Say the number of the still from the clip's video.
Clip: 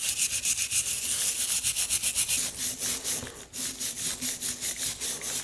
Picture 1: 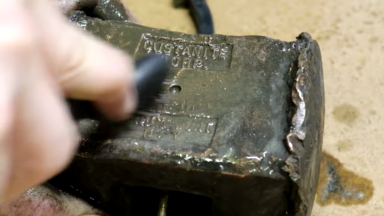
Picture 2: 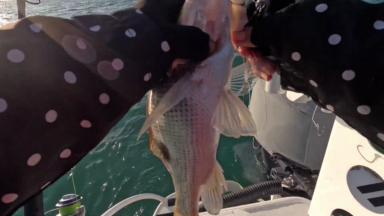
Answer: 1